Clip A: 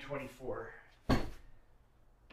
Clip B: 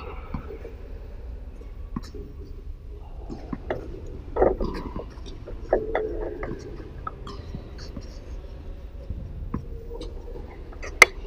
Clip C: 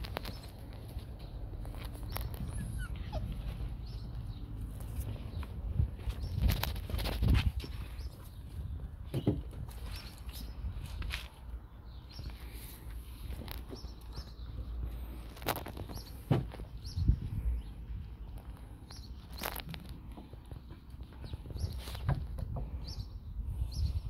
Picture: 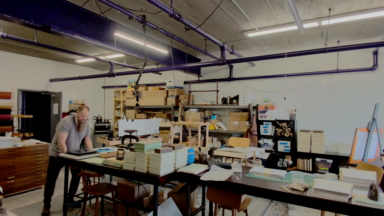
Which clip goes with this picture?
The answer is A